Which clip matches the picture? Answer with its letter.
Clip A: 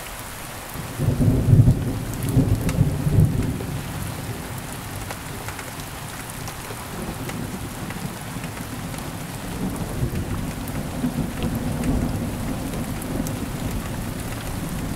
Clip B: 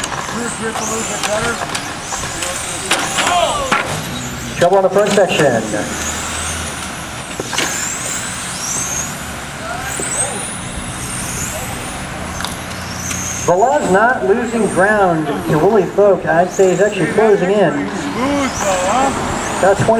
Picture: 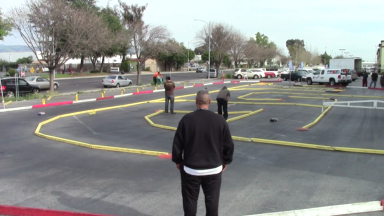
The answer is B